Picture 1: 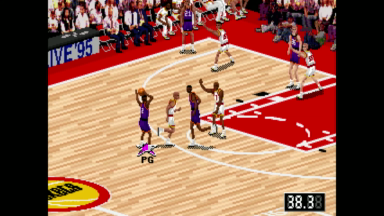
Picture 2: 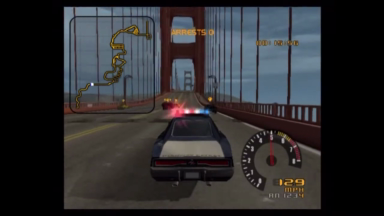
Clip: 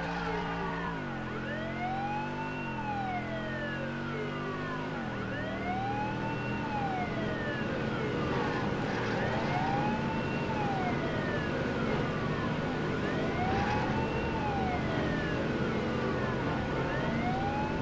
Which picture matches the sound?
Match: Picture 2